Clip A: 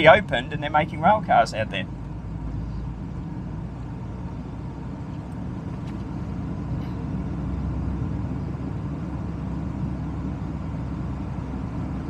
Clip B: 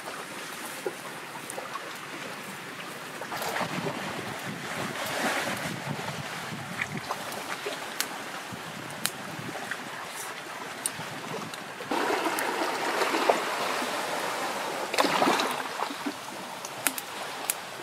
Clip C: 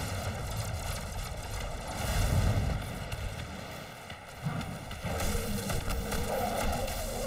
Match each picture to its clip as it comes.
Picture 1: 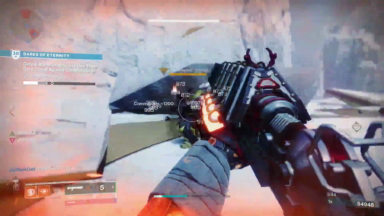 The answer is C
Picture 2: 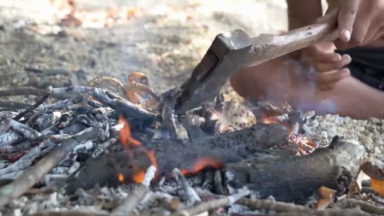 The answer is B